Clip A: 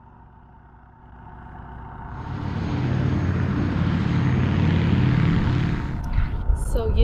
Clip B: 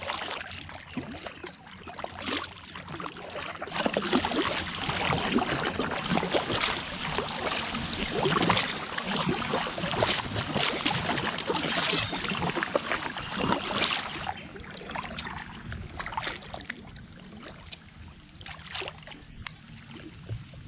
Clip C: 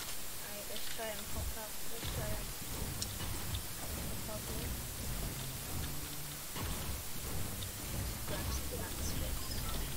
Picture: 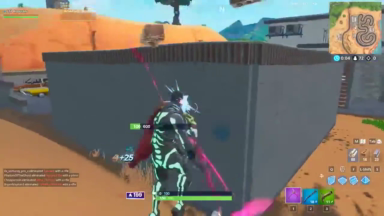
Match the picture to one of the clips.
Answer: C